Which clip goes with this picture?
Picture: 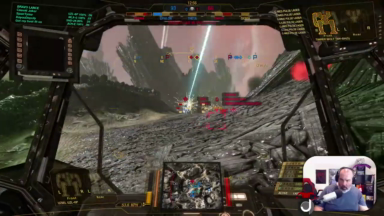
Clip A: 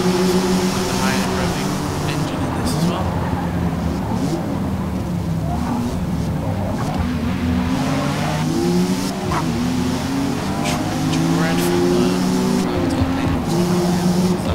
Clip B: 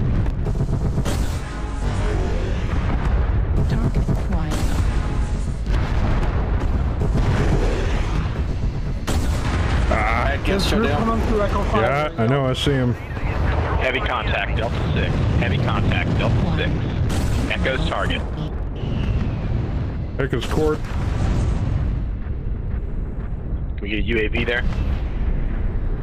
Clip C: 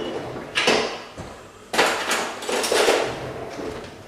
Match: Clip B